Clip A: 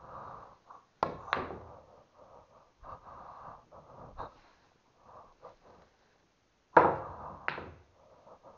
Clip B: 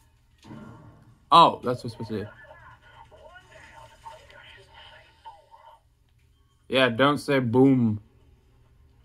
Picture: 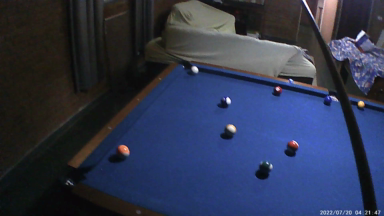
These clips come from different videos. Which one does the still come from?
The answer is A